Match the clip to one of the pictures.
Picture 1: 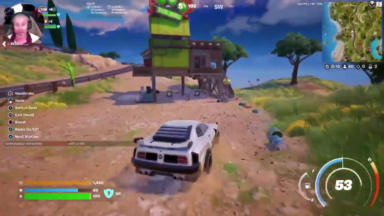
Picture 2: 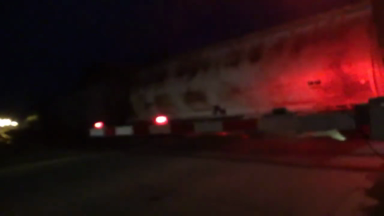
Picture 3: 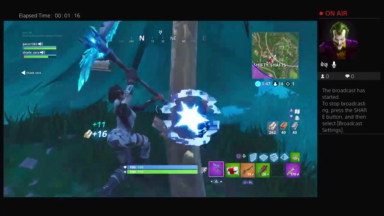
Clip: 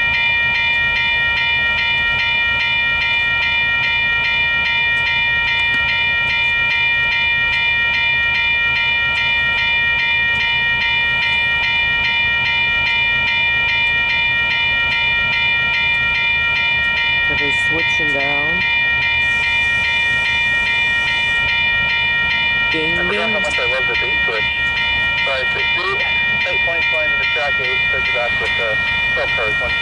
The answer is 2